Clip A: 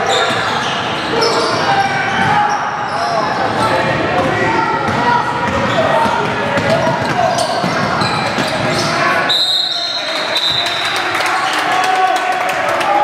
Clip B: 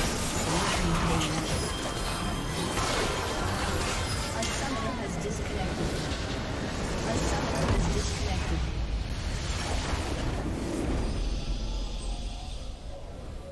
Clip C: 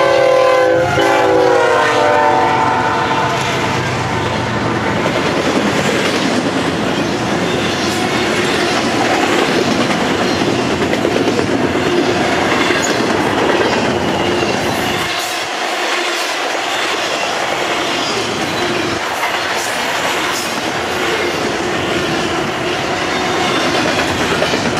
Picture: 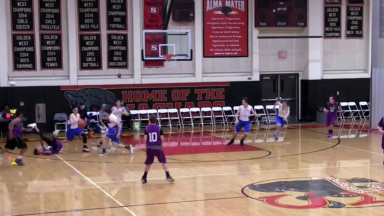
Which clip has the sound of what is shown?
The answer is A